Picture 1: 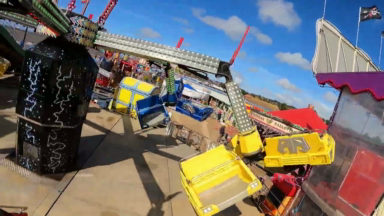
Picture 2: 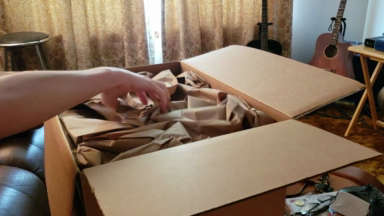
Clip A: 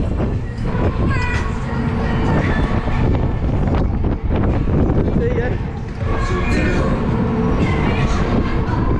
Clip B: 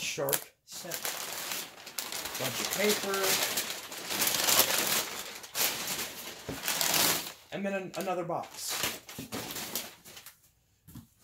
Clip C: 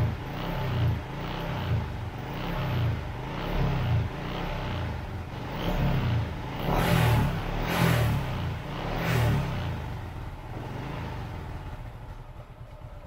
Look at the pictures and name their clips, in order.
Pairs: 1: A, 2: B